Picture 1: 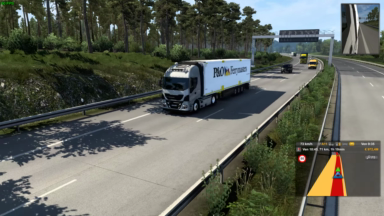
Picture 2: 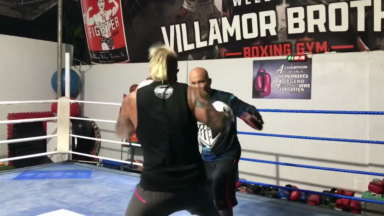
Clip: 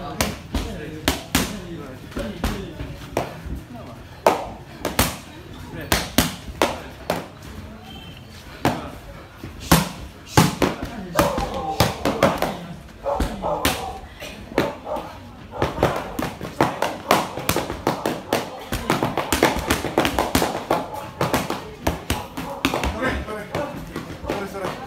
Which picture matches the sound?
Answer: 2